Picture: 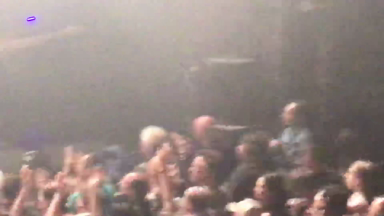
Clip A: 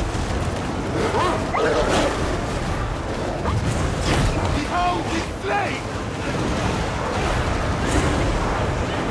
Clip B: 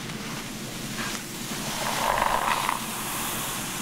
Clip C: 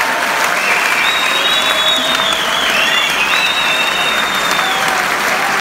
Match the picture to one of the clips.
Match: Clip C